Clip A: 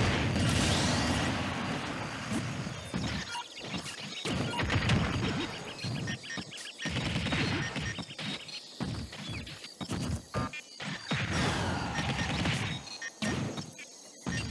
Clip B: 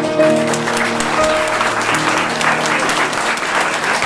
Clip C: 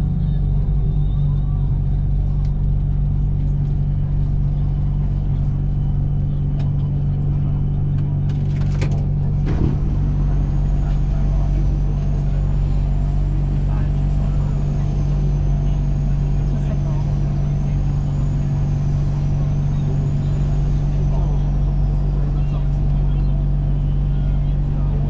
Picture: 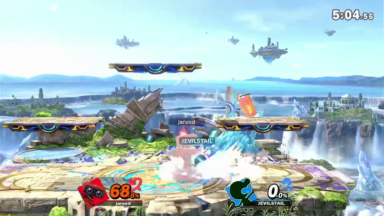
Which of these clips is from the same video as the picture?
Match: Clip A